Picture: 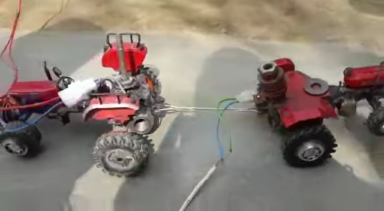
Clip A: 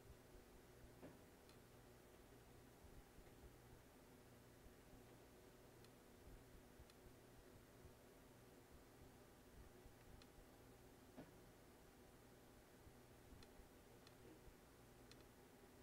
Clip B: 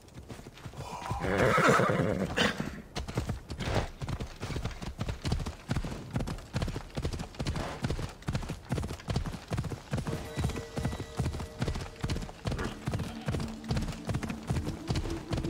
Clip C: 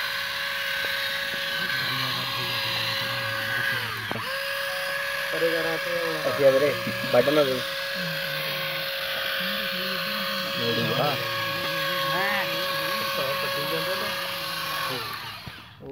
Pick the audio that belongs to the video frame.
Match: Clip C